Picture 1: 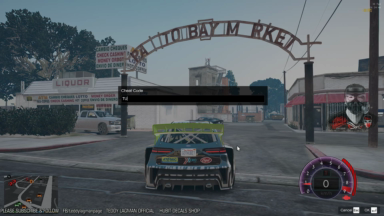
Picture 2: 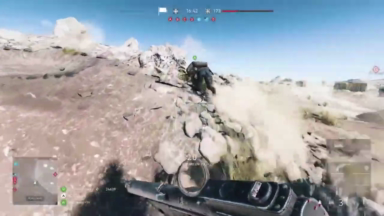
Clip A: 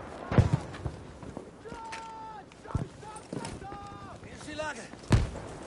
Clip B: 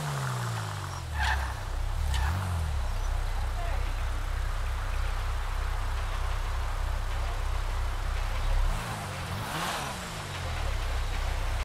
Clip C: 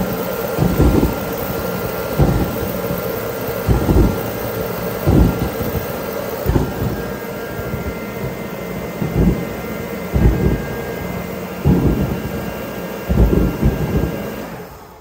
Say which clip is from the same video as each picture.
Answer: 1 B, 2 A